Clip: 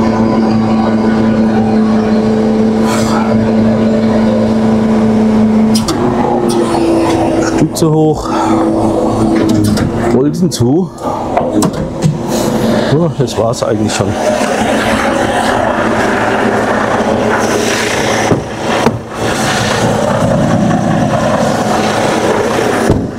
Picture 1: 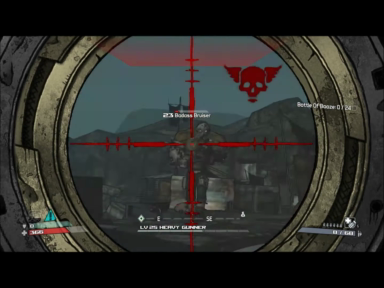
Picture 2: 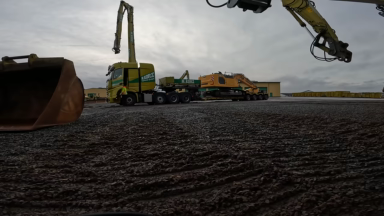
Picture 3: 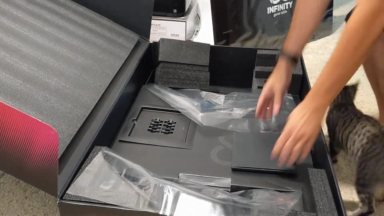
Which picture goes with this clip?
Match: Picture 2